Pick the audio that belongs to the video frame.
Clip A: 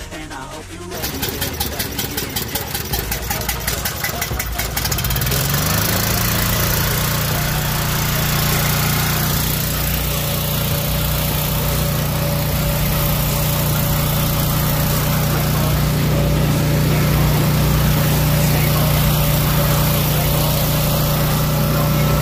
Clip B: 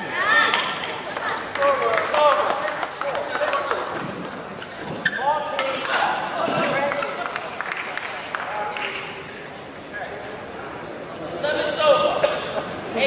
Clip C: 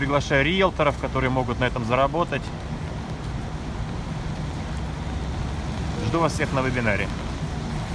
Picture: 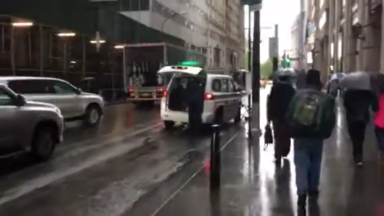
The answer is C